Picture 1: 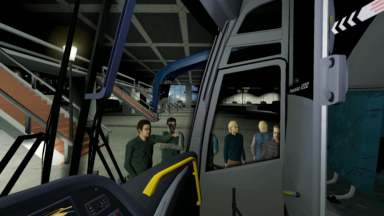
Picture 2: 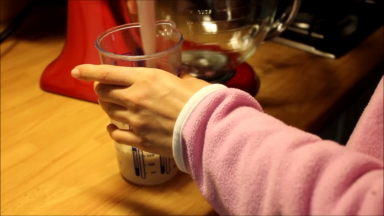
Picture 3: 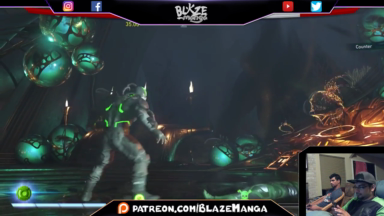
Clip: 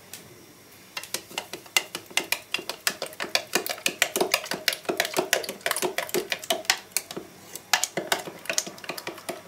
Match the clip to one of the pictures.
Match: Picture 2